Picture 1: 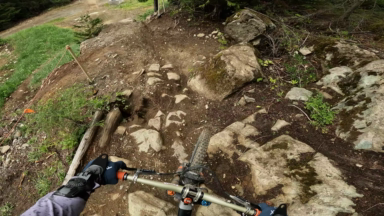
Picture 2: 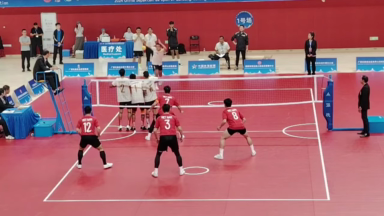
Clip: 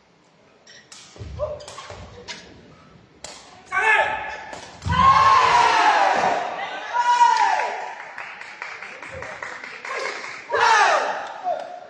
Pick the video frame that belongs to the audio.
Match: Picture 2